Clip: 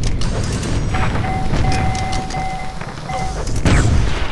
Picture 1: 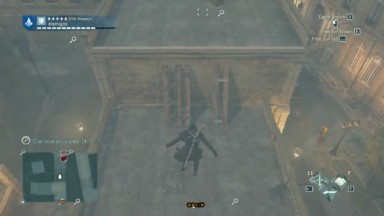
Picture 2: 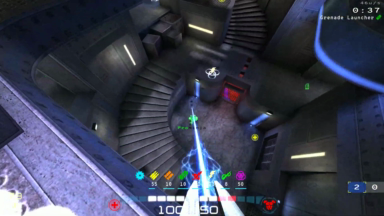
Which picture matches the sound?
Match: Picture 2